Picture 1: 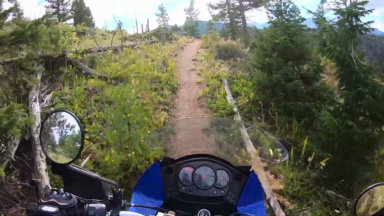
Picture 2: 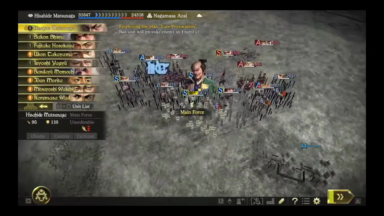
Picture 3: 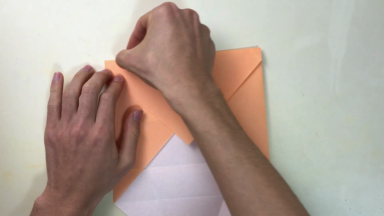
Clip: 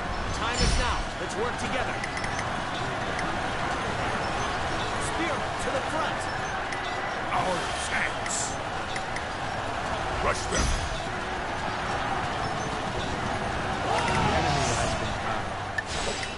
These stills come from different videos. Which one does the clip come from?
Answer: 2